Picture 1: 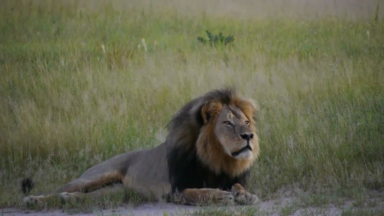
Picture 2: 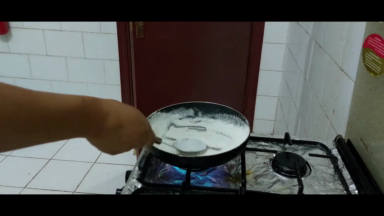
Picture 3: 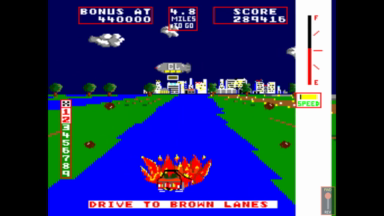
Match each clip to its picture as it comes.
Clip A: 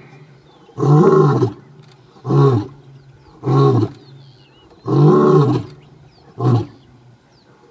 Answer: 1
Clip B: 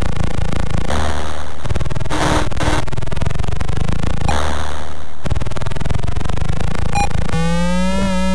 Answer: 3